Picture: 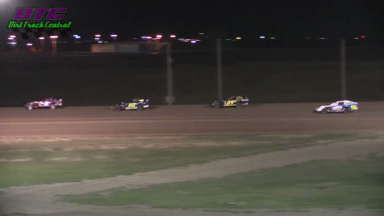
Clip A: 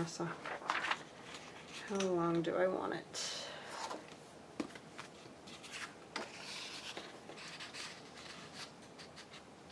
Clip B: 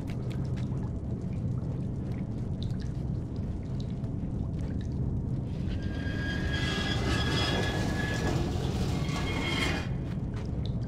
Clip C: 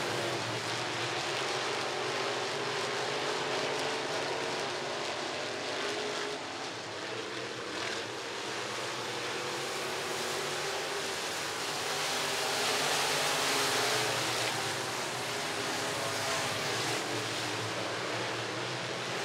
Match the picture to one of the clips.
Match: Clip C